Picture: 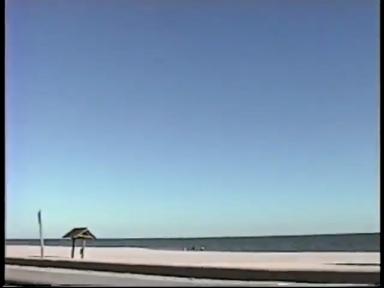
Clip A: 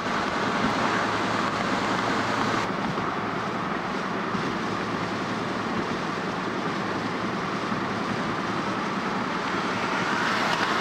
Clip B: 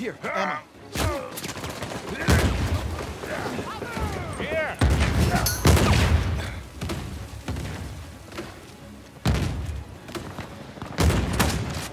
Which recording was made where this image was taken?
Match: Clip A